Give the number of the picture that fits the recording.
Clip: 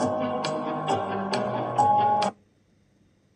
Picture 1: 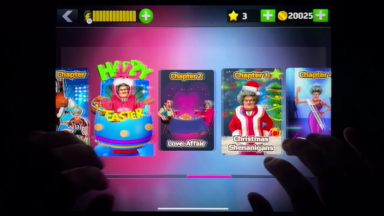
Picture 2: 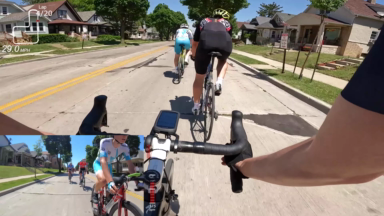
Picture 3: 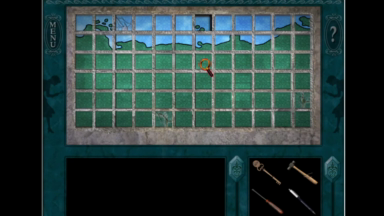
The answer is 1